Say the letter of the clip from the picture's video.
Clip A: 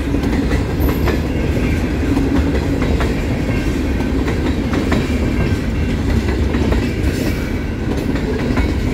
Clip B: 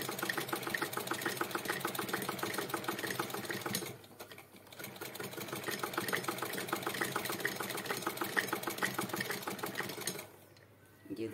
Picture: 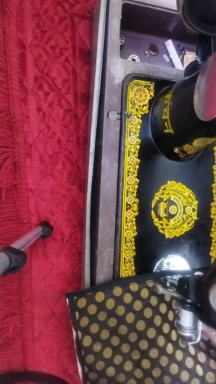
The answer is B